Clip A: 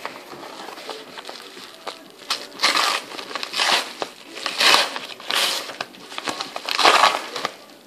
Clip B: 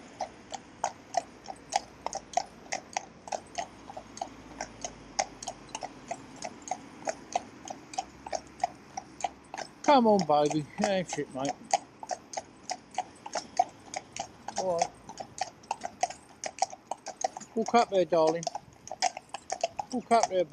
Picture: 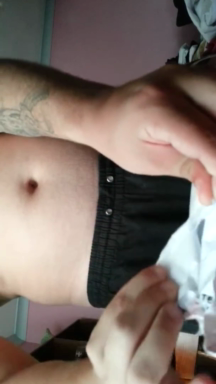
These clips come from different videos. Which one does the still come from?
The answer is A